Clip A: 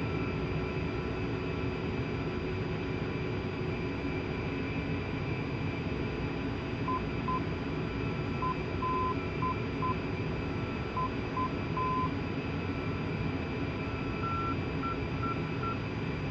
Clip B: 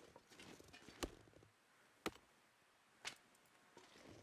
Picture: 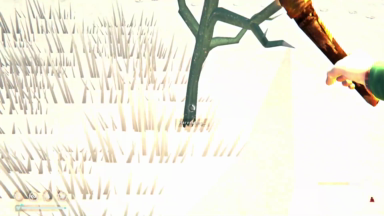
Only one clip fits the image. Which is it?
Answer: B